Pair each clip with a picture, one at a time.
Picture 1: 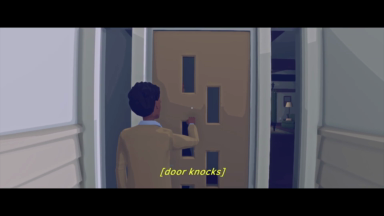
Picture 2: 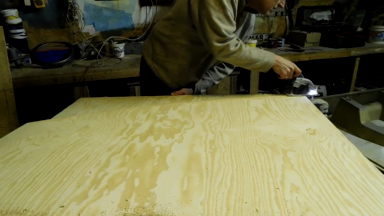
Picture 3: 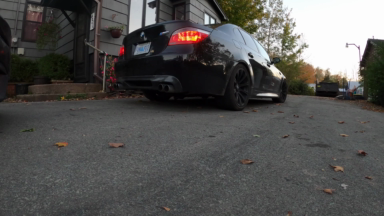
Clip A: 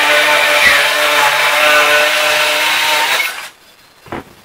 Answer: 2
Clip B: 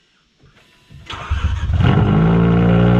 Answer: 3